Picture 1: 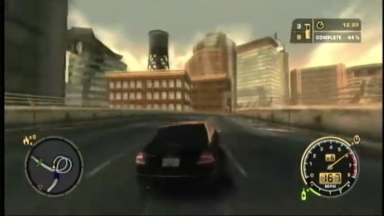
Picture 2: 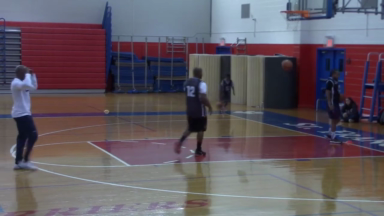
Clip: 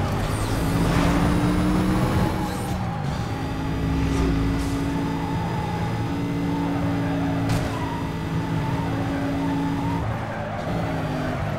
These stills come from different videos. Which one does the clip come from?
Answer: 1